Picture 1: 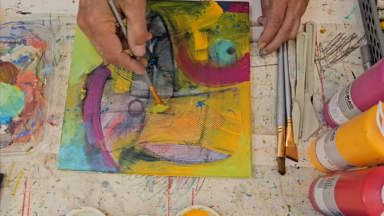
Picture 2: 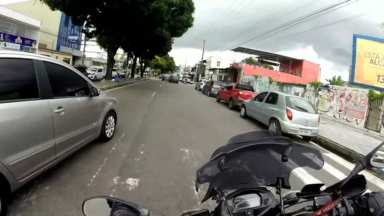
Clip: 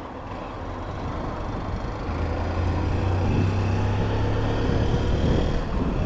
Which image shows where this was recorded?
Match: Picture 2